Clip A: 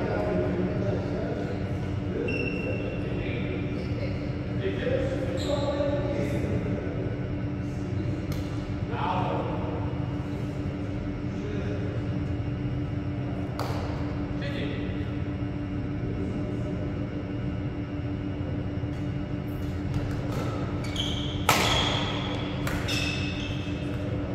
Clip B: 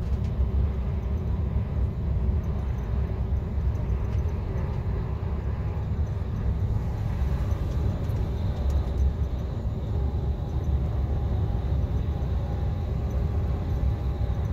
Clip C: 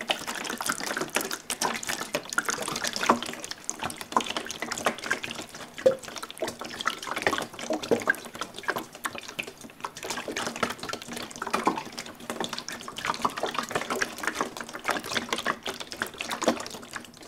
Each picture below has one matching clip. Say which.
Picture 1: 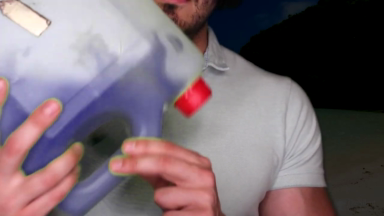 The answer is C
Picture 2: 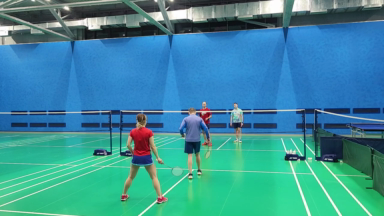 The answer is A